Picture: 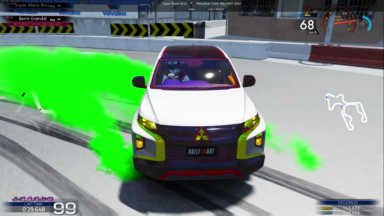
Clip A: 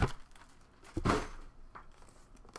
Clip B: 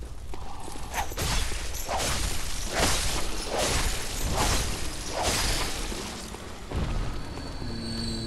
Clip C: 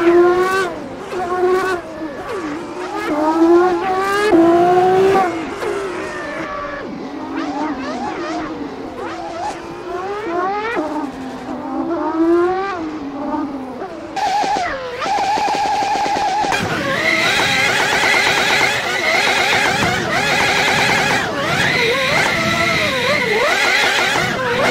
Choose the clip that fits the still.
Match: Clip C